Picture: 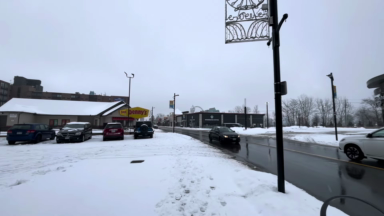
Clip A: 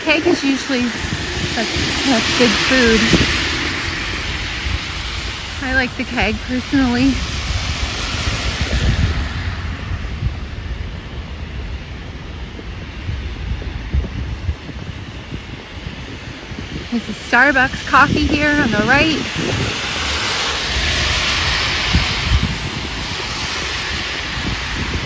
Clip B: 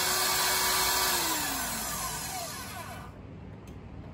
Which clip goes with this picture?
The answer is A